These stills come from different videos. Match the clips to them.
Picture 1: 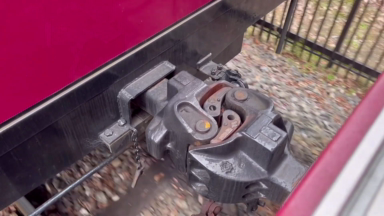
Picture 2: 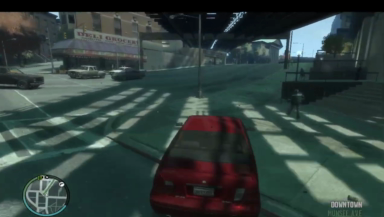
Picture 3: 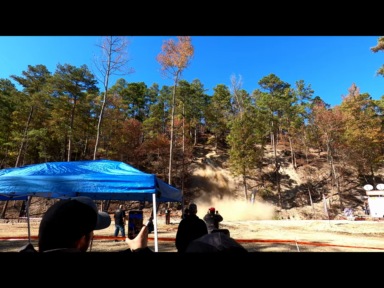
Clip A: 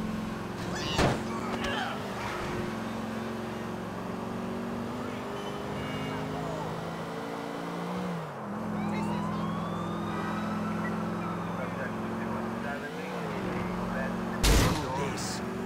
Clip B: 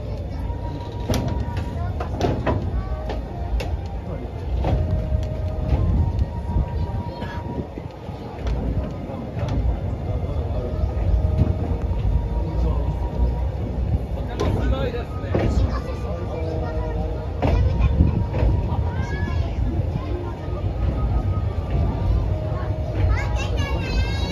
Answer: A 2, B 1